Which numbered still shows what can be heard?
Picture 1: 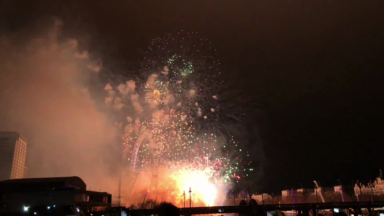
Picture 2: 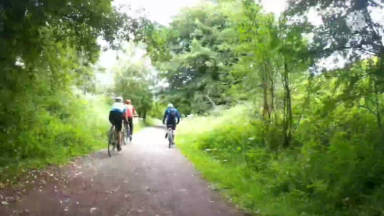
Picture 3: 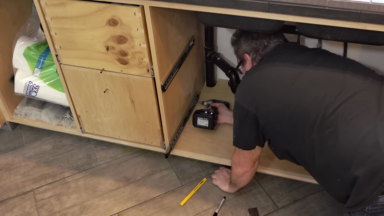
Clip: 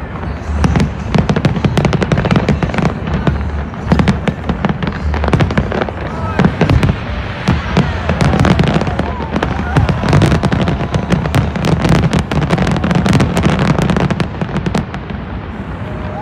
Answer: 1